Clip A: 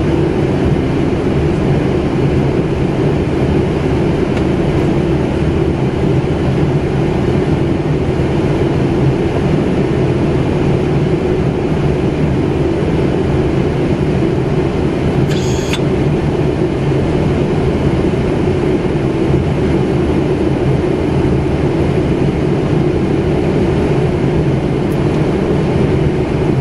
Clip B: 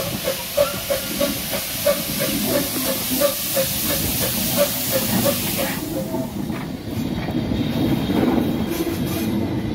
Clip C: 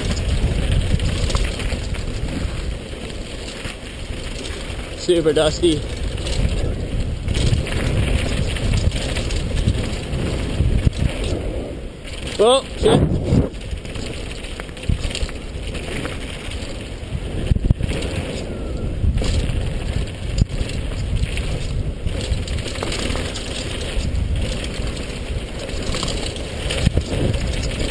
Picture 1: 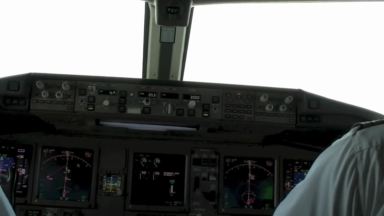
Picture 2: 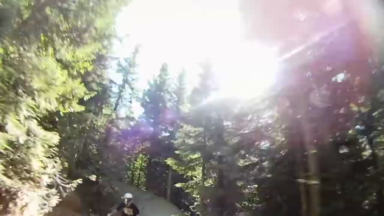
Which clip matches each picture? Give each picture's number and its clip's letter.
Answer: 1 A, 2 C